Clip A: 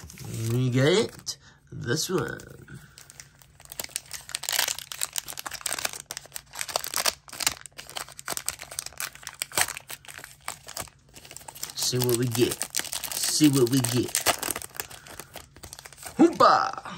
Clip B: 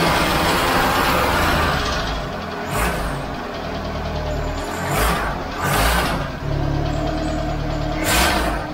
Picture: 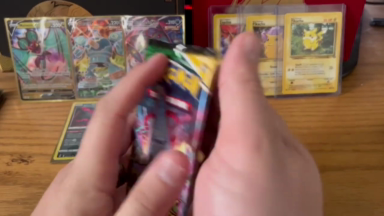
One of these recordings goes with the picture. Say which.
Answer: A